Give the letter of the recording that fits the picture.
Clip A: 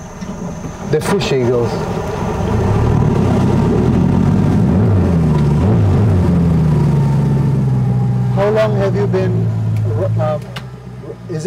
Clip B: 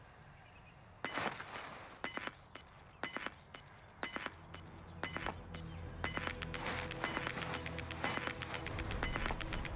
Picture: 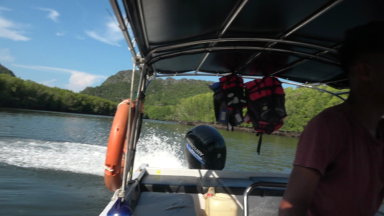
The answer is A